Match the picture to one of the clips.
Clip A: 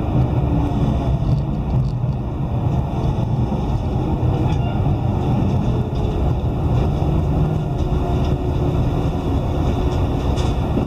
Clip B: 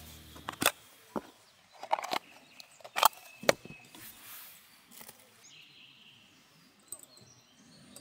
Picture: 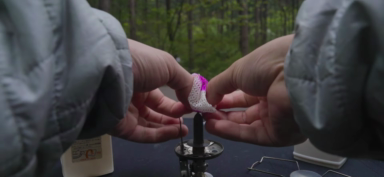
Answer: B